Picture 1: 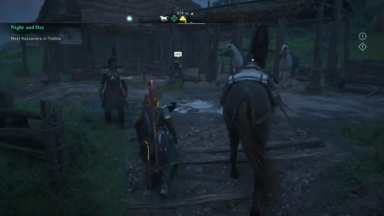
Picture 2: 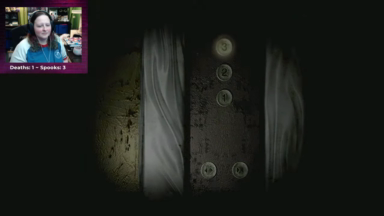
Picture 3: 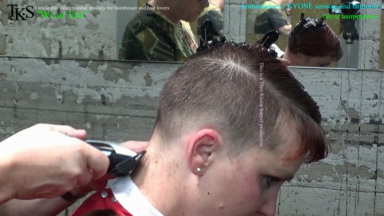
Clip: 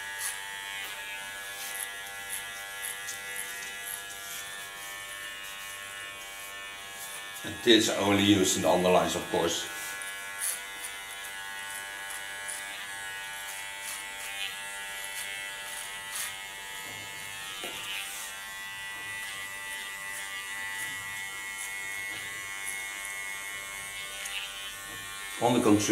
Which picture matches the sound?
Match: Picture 3